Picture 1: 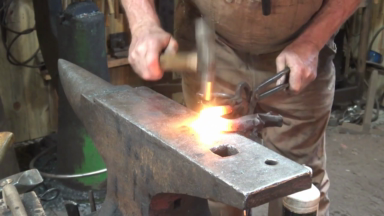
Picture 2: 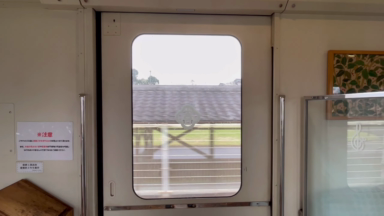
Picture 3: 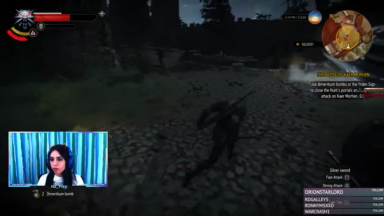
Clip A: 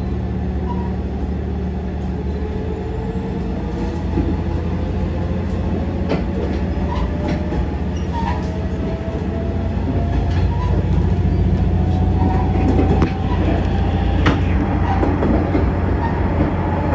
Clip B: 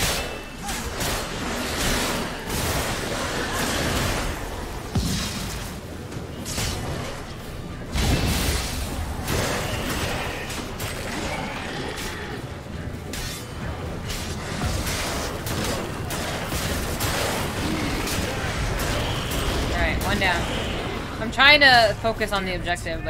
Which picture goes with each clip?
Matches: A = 2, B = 3